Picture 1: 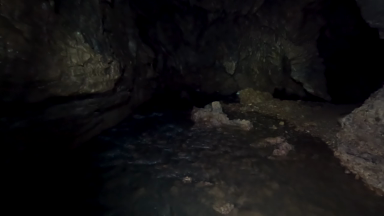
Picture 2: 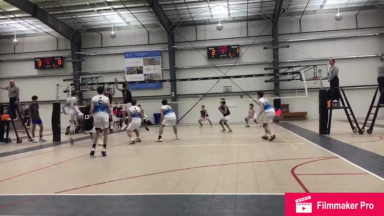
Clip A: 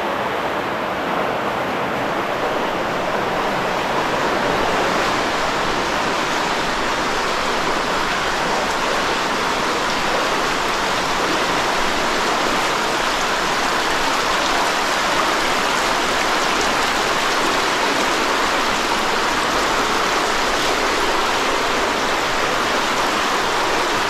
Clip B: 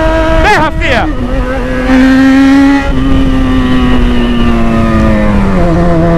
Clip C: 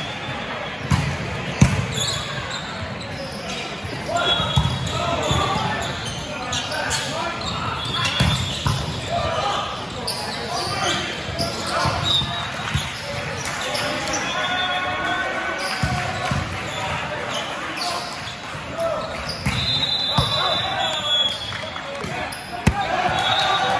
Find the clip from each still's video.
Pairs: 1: A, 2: C